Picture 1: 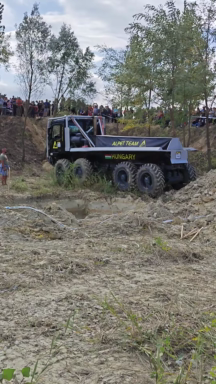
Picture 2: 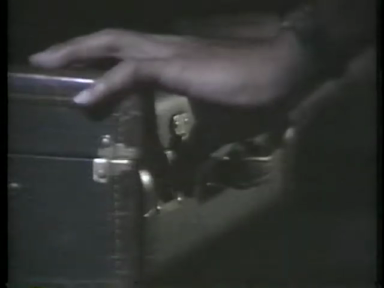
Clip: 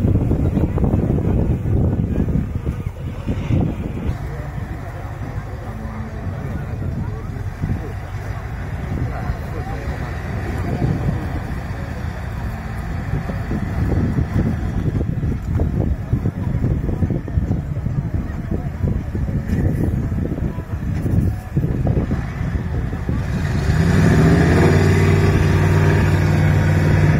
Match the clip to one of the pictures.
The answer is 1